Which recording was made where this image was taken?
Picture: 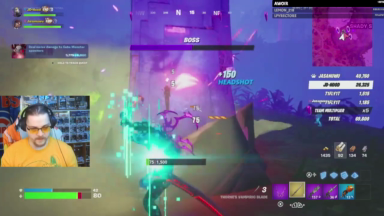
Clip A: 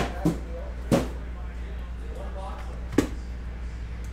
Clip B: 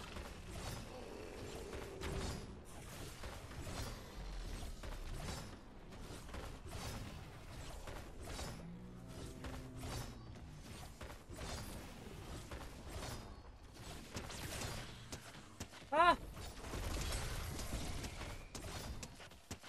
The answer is B